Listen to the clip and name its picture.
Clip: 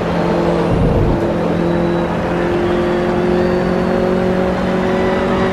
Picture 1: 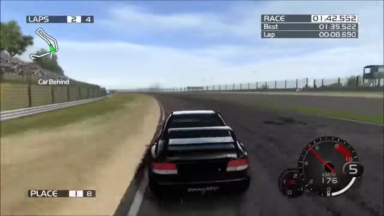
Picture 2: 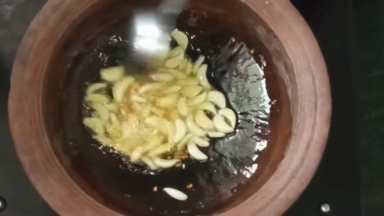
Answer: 1